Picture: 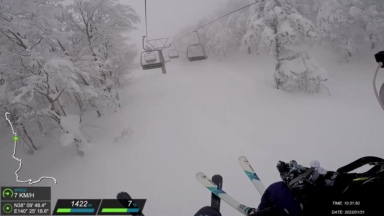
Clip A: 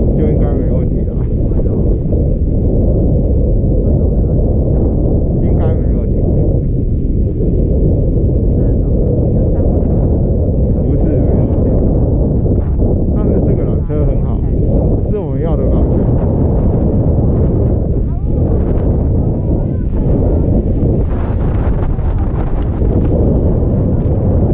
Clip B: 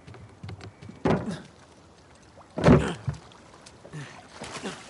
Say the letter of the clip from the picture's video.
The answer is A